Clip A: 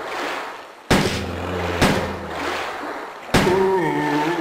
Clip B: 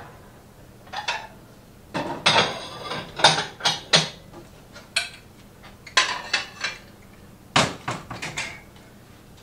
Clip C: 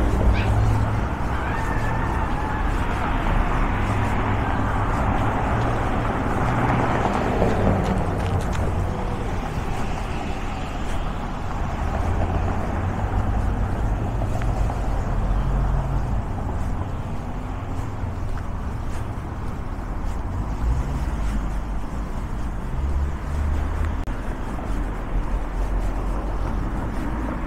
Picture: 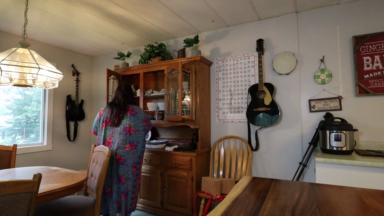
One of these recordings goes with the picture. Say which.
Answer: B